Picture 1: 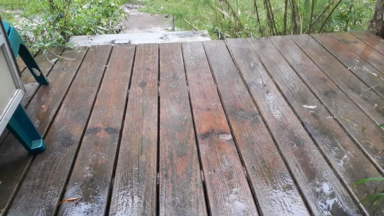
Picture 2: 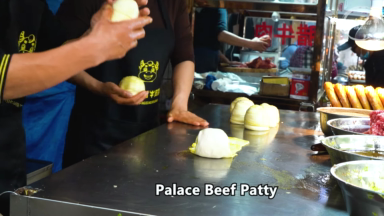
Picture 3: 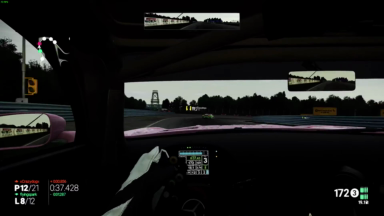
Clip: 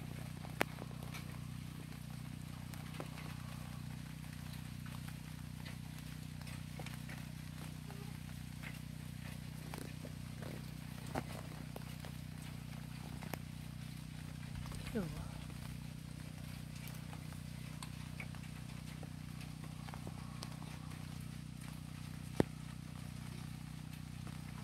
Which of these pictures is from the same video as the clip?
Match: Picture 1